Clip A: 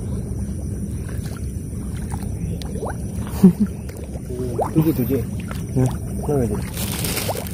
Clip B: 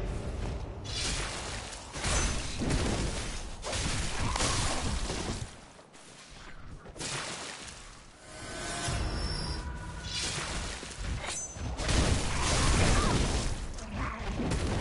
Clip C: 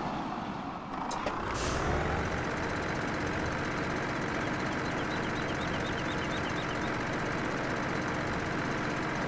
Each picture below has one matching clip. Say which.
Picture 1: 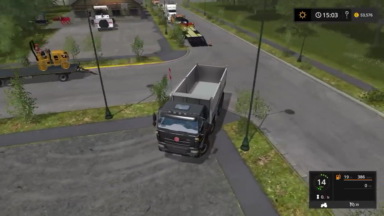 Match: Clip C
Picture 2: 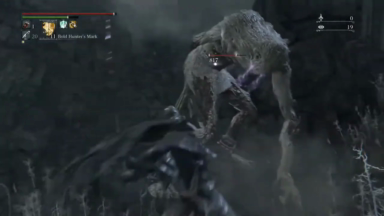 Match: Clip B